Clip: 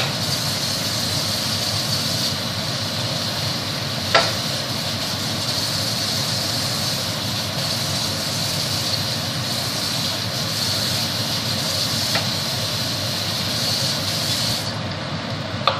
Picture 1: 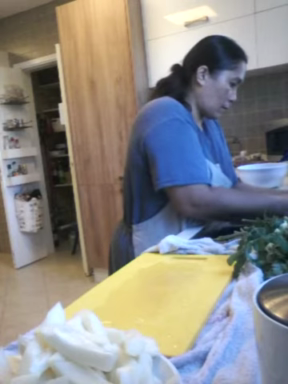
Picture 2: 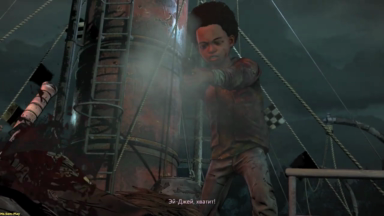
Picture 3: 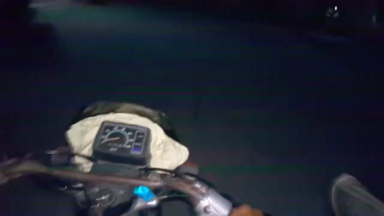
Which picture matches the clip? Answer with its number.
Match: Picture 1